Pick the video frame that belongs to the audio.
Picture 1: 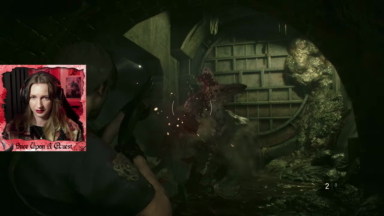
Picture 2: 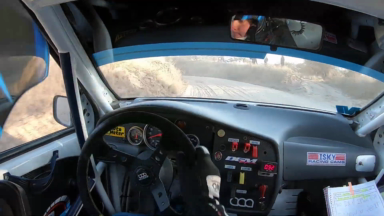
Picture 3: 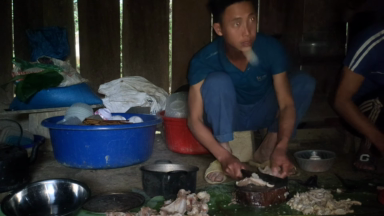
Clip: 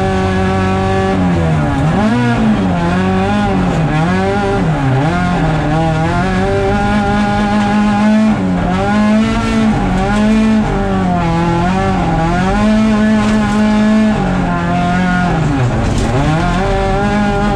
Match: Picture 2